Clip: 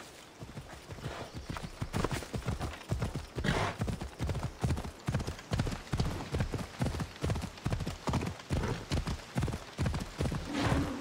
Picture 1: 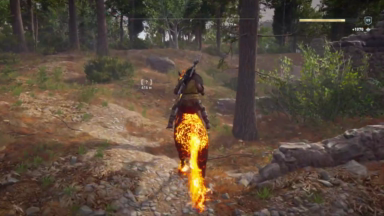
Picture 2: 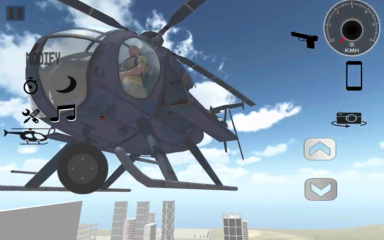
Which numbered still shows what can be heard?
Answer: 1